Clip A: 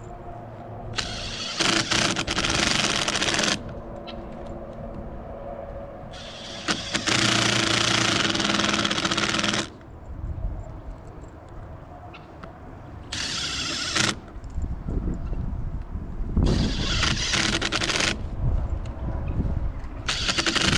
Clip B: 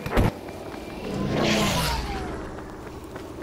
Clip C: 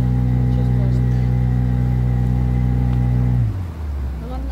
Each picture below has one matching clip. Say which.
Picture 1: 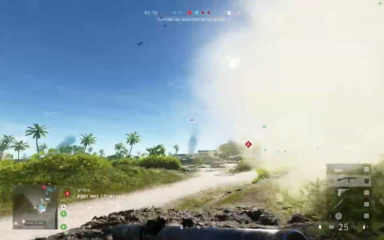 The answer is B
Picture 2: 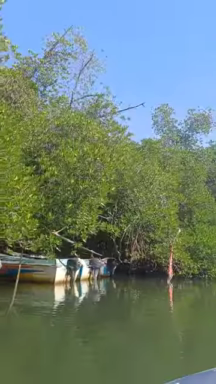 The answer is C